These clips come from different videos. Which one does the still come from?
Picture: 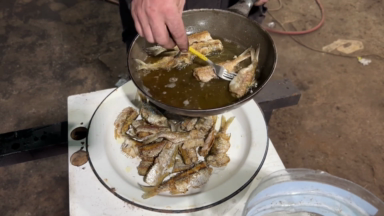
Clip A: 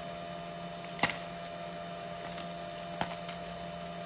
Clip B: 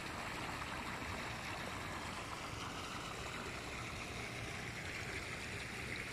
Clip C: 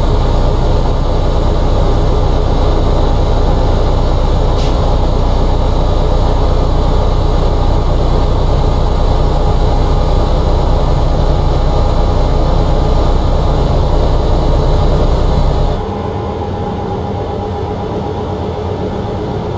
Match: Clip A